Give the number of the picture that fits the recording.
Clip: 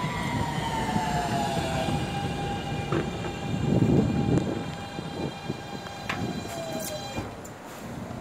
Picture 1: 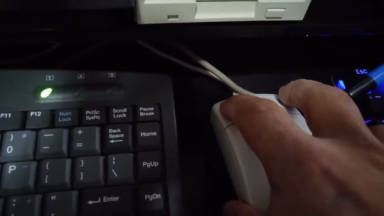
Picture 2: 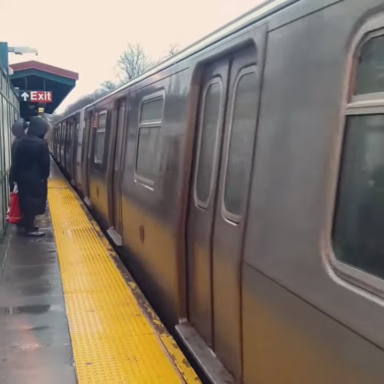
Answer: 2